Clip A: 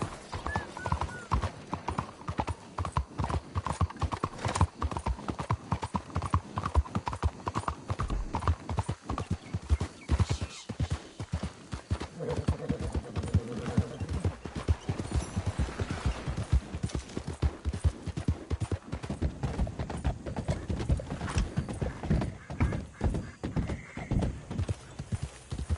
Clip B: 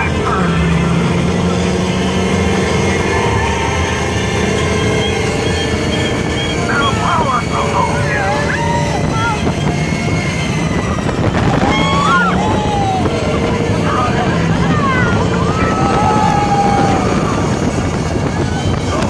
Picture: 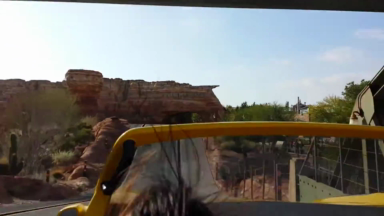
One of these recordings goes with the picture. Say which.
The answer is B